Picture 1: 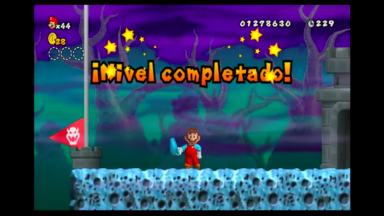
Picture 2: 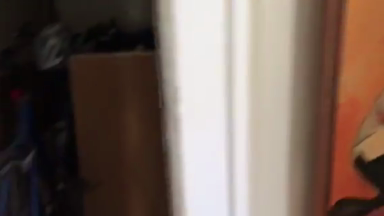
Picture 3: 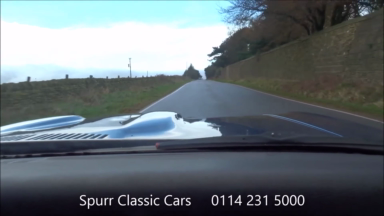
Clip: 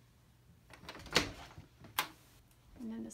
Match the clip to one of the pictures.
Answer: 2